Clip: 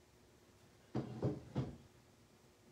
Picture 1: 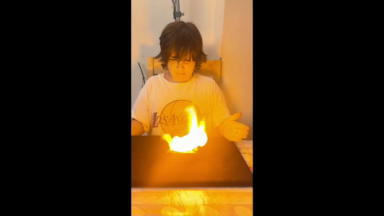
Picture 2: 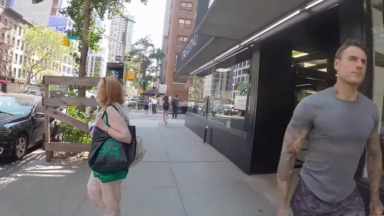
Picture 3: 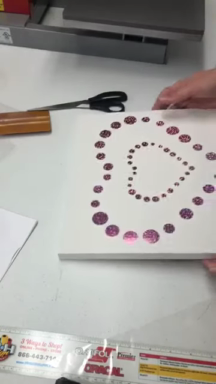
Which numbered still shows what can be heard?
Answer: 3